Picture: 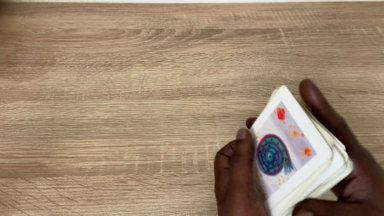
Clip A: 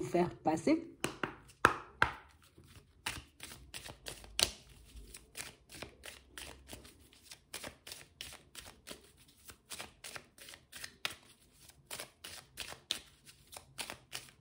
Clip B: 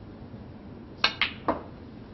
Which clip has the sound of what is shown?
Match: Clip A